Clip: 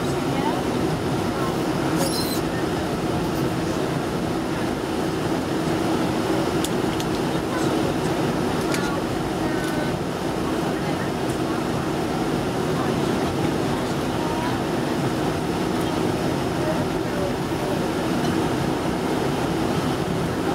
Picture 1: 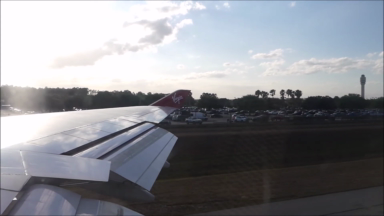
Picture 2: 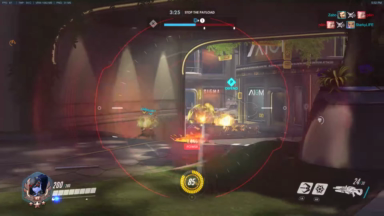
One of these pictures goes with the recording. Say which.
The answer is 1